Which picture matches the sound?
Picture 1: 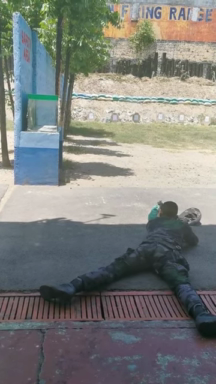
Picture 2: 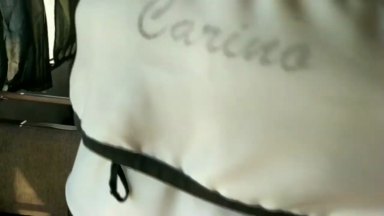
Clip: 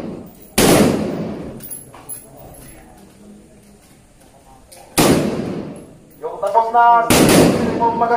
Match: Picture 1